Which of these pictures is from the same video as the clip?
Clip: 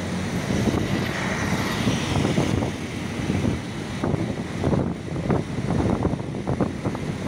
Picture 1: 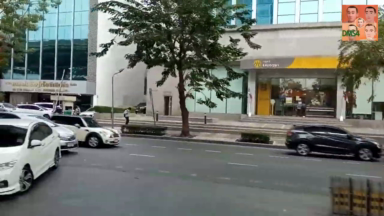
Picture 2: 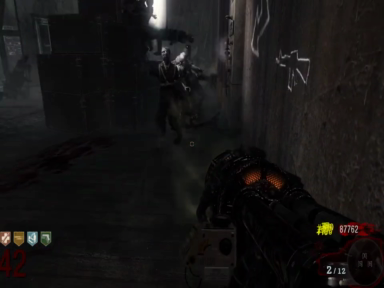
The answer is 1